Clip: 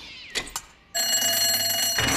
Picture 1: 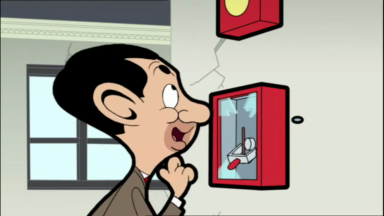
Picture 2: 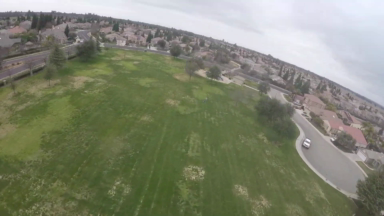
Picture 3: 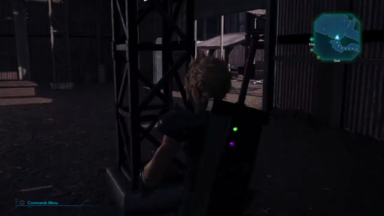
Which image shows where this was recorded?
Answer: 1